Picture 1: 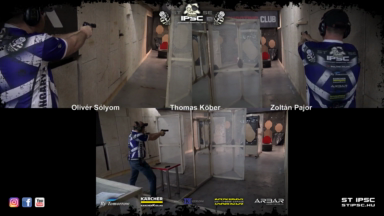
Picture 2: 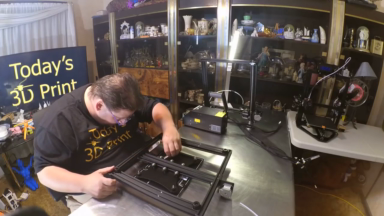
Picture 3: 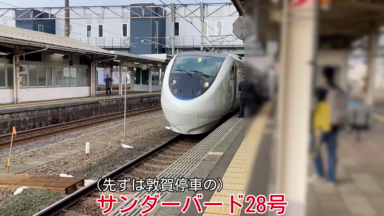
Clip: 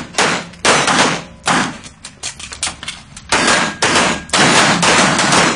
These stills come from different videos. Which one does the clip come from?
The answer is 1